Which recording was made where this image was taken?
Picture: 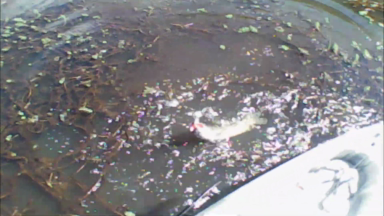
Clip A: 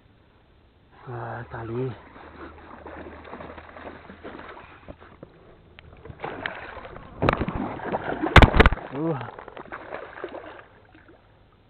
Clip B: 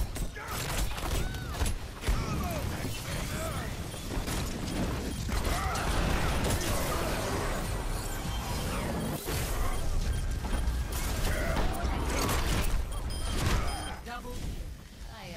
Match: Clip A